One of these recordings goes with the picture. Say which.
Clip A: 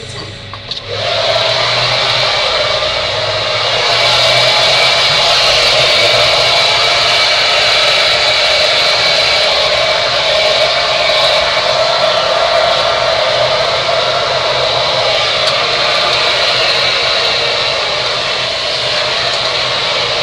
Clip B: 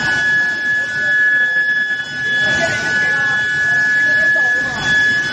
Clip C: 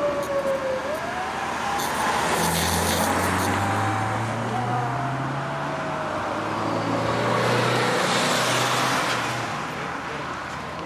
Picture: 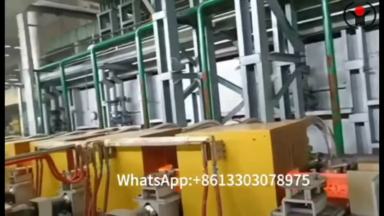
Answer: B